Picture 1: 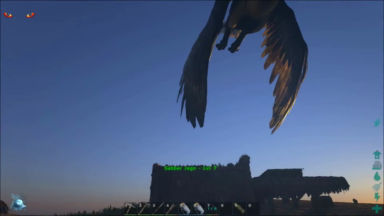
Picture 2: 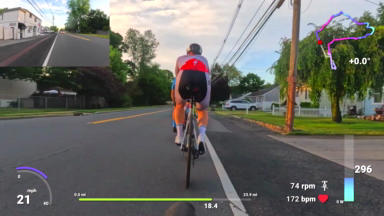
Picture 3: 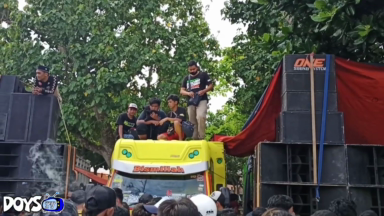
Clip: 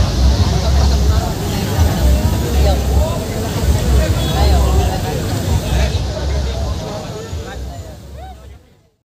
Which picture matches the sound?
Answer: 3